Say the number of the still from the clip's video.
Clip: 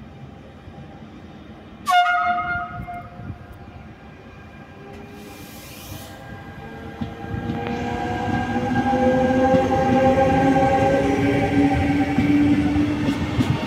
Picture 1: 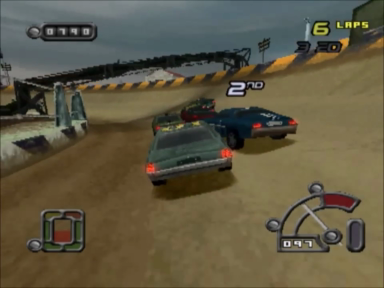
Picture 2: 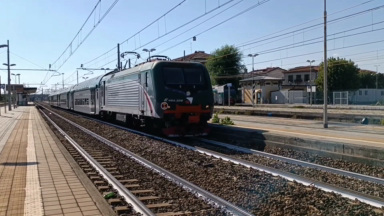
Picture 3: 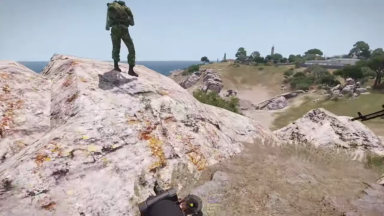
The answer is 2